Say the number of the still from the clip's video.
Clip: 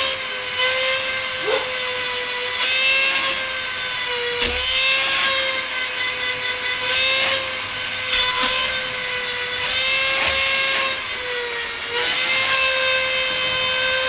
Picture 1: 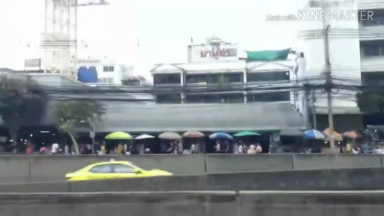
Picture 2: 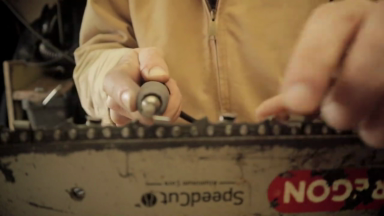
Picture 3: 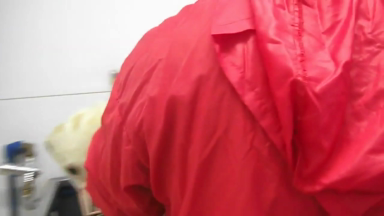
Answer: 2